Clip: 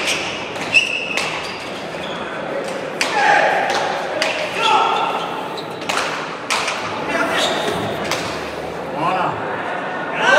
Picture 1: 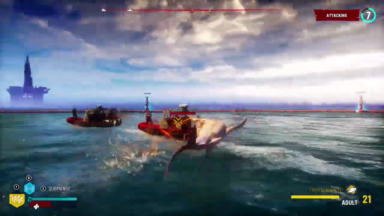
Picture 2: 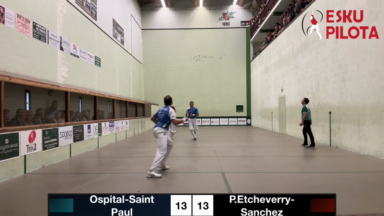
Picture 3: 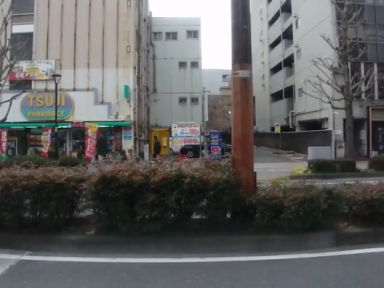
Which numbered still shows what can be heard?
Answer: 2